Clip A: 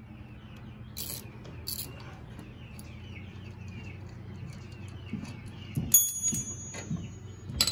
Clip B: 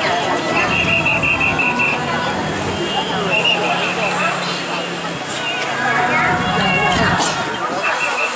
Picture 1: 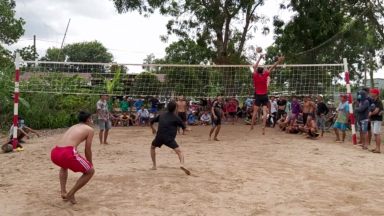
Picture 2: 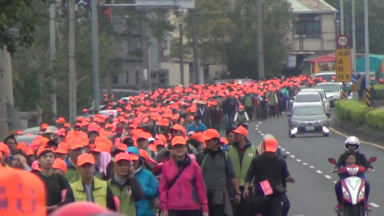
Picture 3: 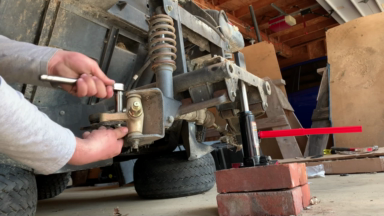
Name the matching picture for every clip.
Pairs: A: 3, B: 2